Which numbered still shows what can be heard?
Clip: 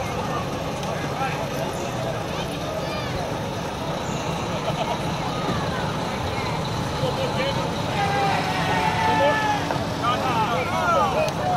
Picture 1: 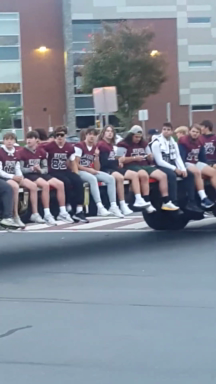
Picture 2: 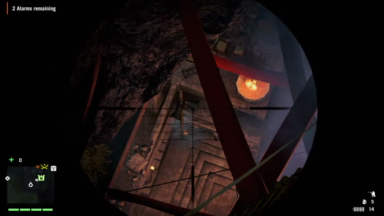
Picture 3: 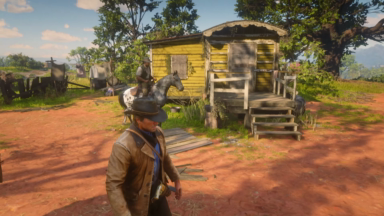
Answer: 1